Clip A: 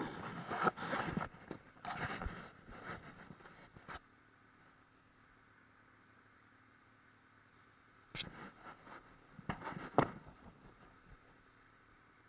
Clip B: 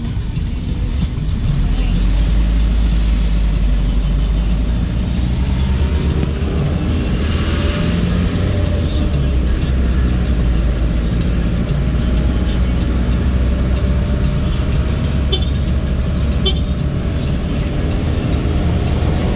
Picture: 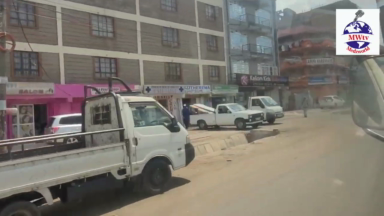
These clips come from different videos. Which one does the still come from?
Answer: B